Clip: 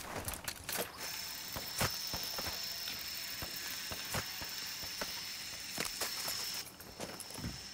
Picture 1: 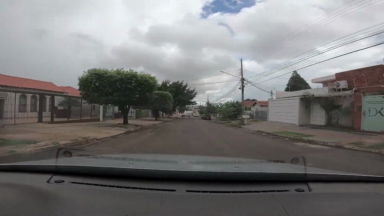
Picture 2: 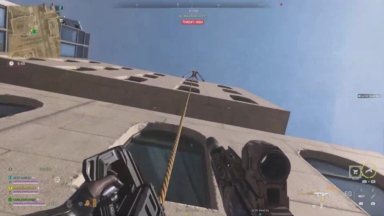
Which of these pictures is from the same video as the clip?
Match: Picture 2